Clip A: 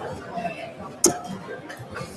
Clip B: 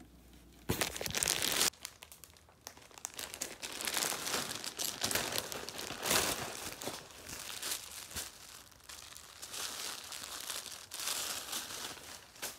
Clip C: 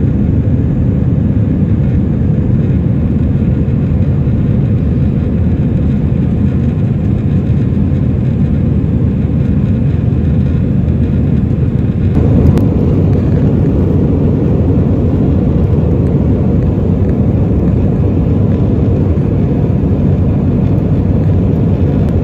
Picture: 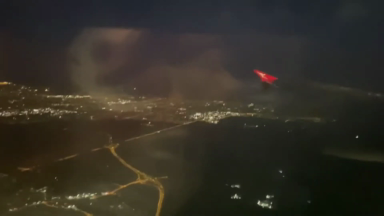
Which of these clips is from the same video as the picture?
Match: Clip C